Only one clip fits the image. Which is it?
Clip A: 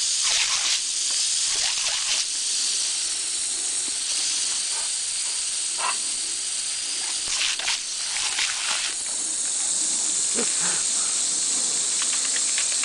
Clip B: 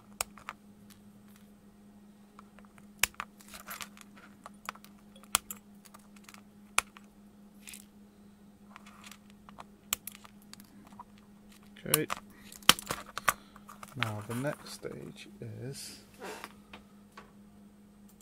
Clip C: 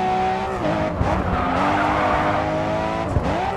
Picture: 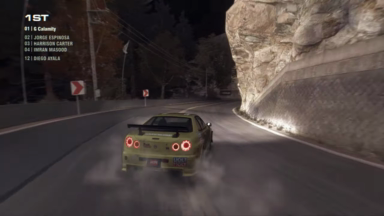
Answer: C